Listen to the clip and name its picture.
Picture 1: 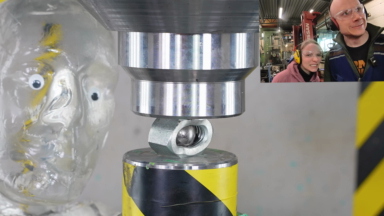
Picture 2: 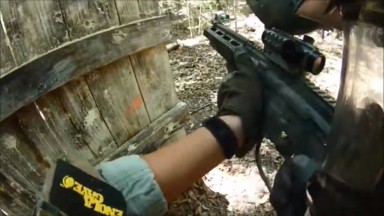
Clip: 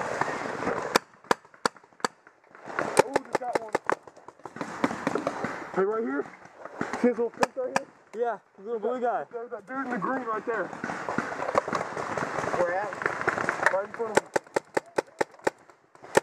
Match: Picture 2